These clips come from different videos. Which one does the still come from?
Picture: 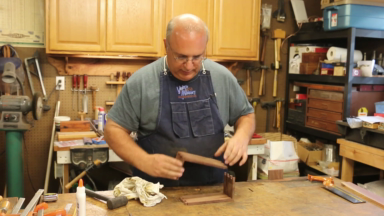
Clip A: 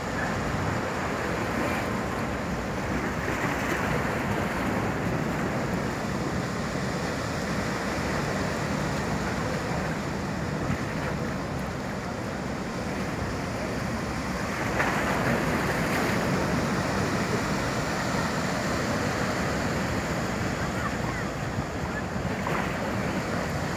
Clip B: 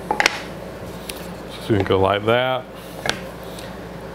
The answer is B